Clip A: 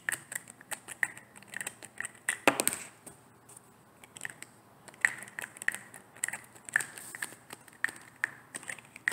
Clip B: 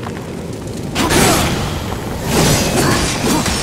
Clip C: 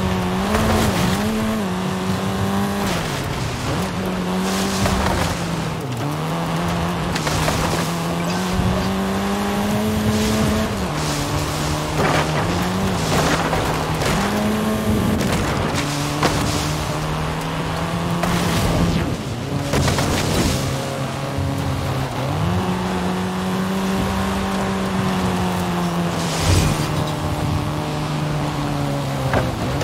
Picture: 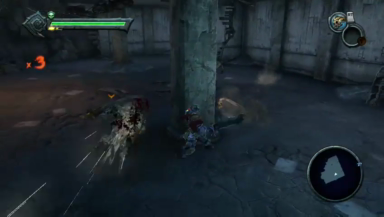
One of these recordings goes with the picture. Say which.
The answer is B